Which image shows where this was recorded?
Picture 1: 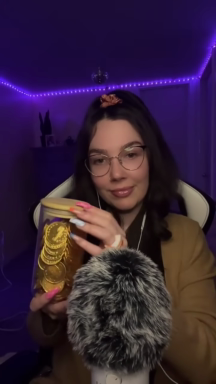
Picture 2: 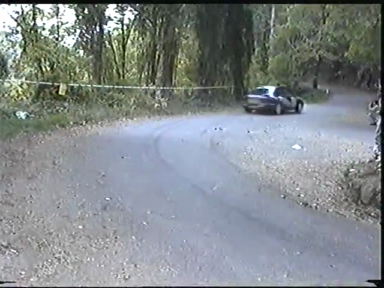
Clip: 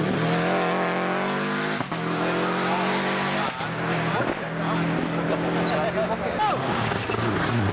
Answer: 2